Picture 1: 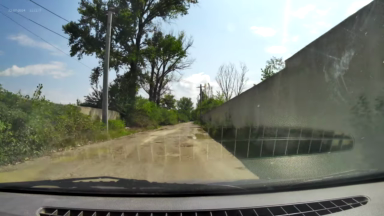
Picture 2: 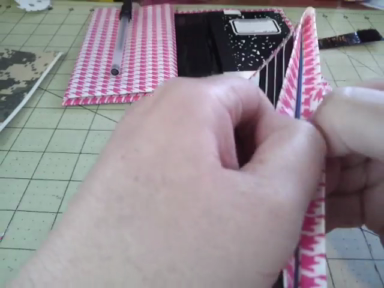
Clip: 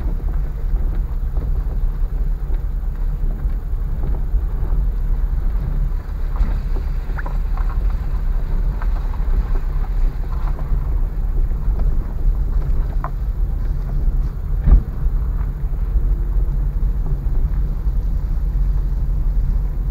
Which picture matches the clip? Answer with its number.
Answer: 1